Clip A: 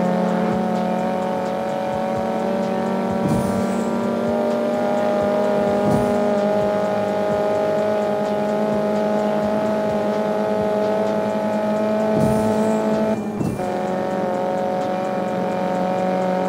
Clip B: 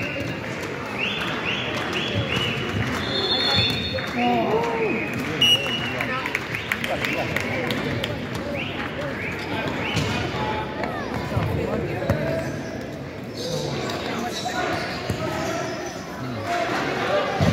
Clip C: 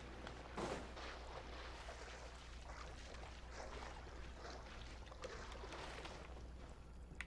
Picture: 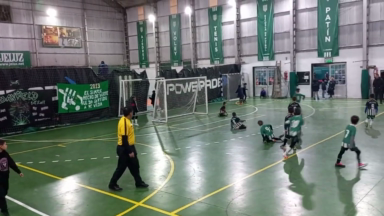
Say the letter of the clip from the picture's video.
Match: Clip B